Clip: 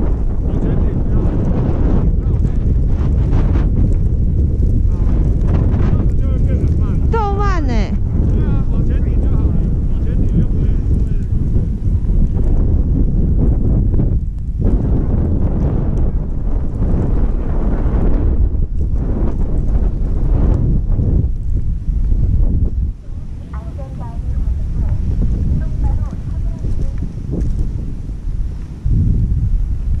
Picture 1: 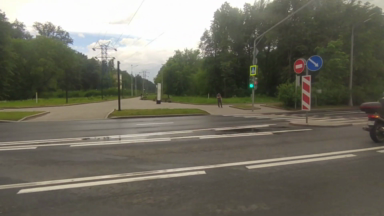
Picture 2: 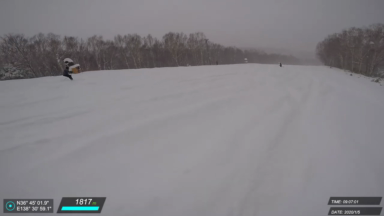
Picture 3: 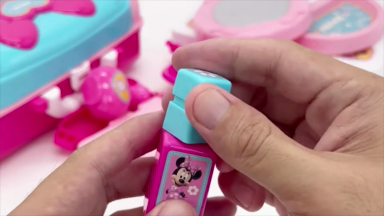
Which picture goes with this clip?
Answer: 2